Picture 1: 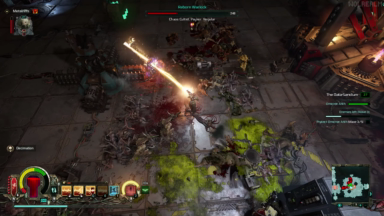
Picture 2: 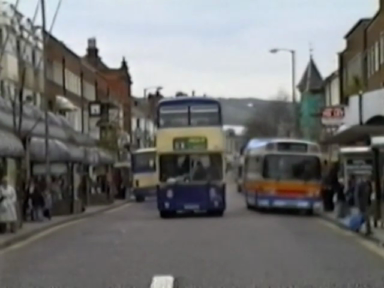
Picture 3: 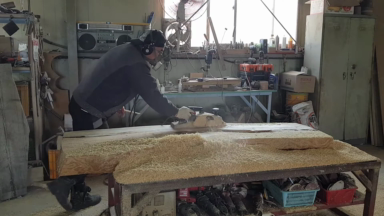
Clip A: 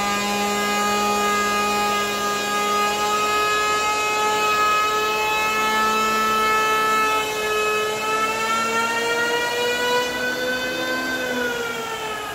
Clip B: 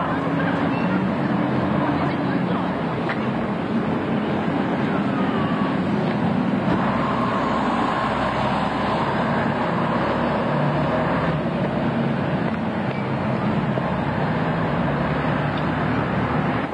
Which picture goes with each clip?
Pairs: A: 3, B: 2